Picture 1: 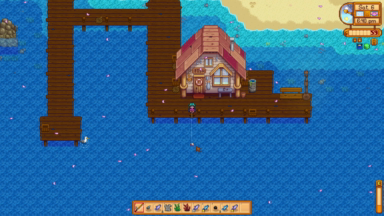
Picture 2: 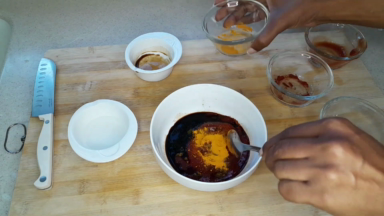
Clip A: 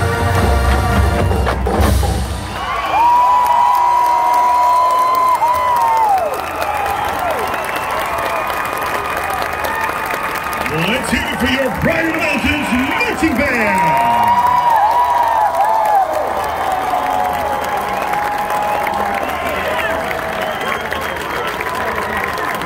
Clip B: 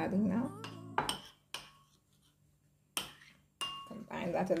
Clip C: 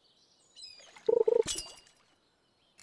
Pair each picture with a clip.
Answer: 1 C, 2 B